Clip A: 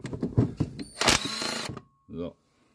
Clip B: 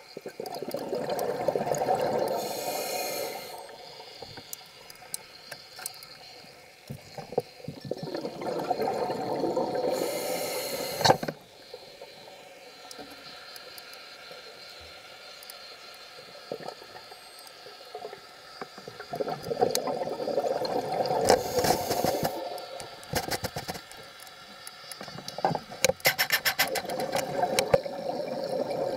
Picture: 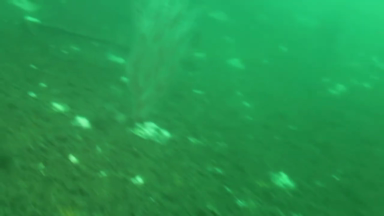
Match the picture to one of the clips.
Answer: B